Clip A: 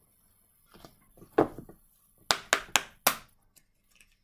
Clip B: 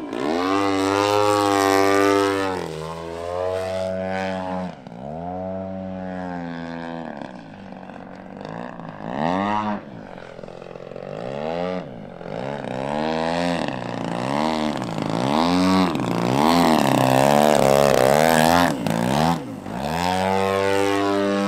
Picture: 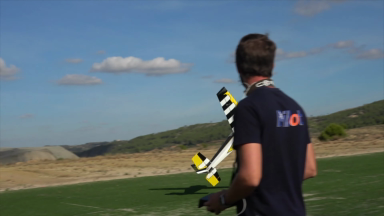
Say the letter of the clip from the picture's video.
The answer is B